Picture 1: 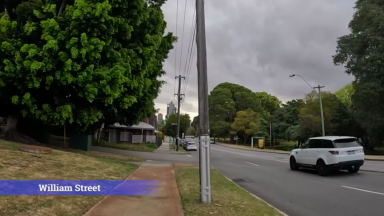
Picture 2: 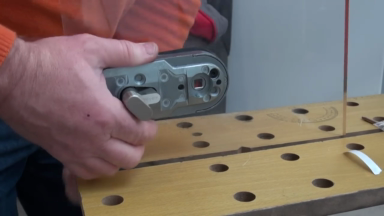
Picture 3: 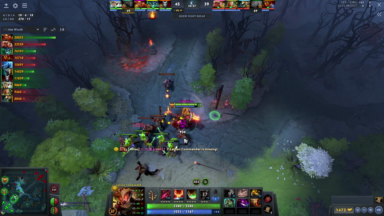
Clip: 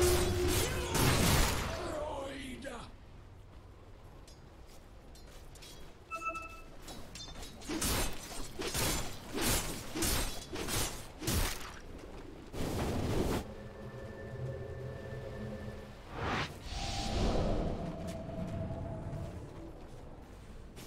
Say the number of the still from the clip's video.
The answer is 3